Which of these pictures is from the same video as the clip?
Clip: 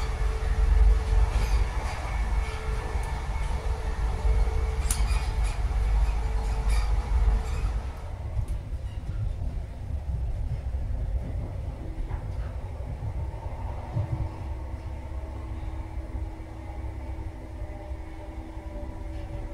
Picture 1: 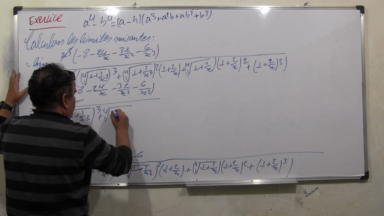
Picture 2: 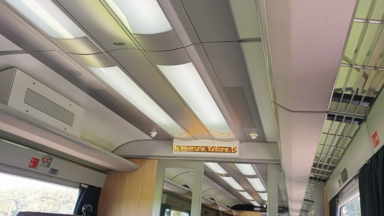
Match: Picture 2